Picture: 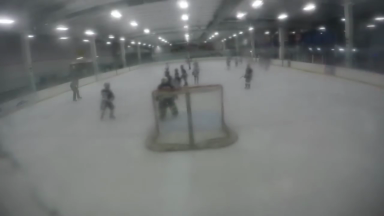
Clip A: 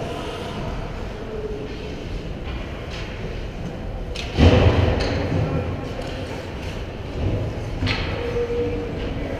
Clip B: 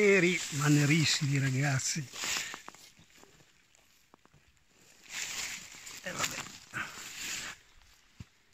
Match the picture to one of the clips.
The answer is A